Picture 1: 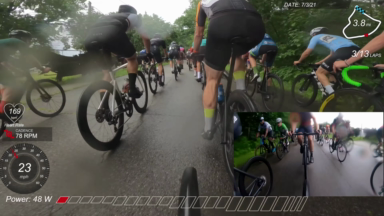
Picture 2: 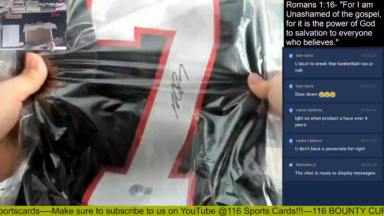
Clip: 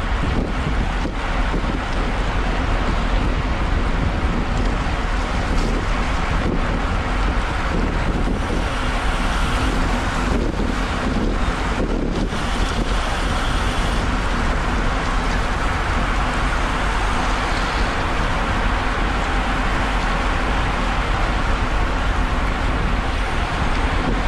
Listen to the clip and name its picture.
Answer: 1